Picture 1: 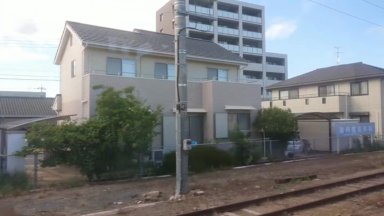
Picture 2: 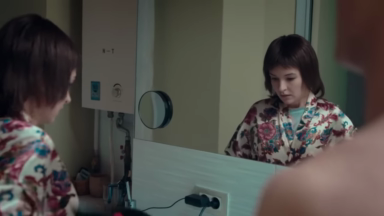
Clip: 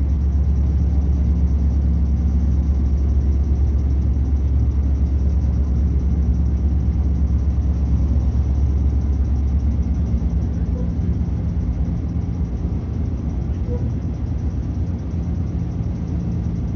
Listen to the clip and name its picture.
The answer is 1